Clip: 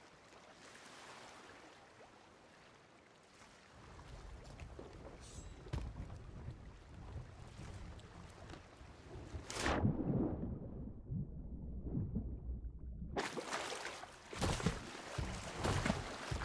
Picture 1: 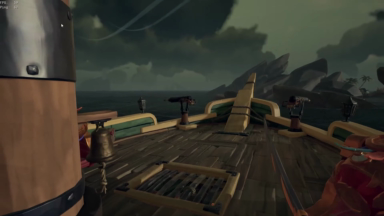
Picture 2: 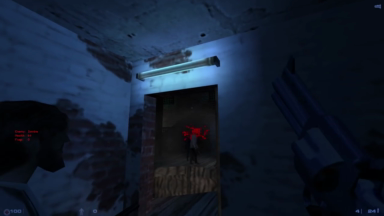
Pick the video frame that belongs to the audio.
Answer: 1